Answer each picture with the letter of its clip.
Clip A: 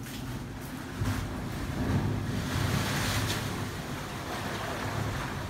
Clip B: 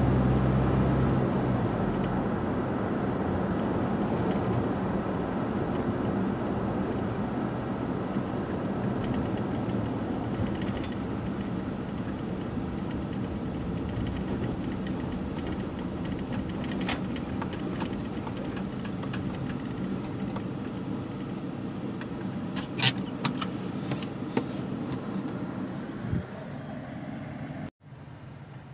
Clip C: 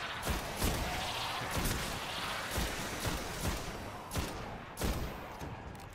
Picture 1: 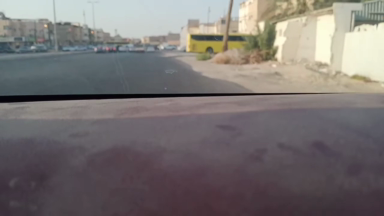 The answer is B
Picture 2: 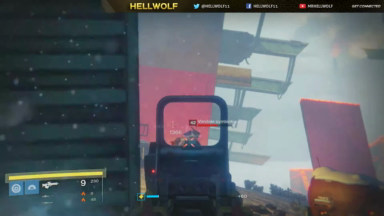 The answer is C